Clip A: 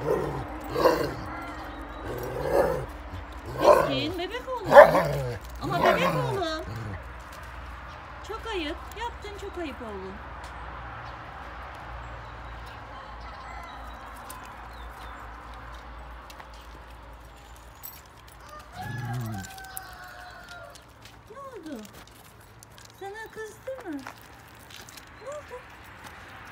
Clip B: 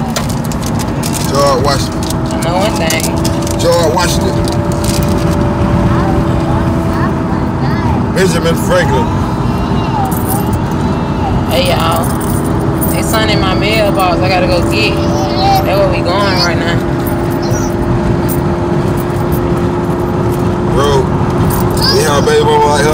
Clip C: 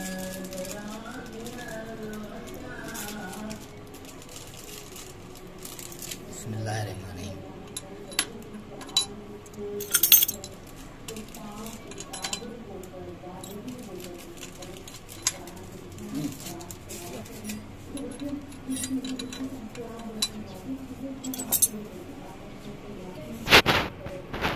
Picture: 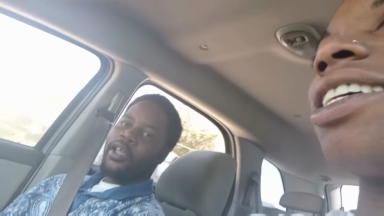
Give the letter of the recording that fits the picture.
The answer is B